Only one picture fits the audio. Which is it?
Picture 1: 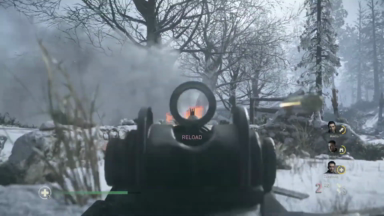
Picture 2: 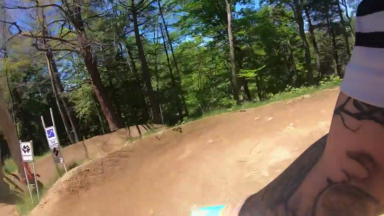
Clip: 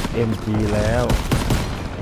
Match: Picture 1